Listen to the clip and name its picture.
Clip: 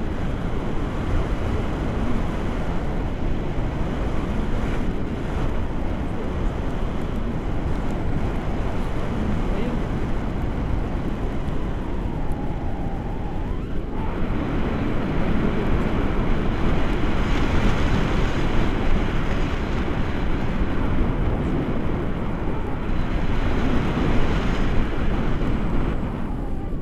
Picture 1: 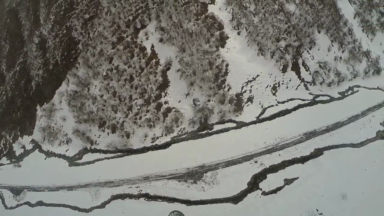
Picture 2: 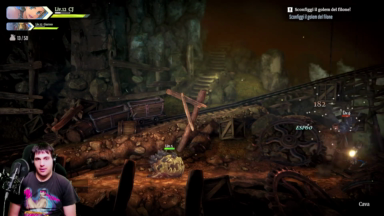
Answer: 1